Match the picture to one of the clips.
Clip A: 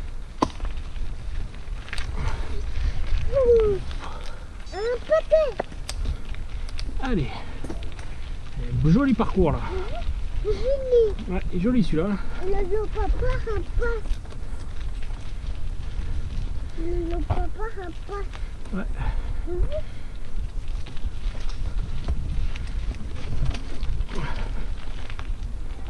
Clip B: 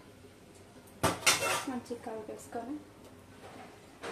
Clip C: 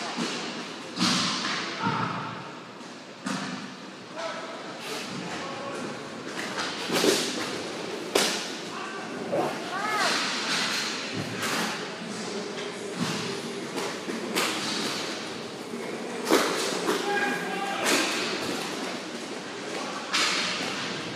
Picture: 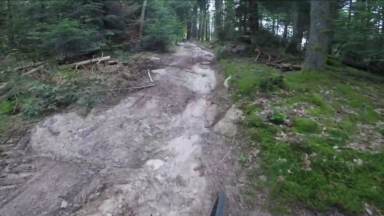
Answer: A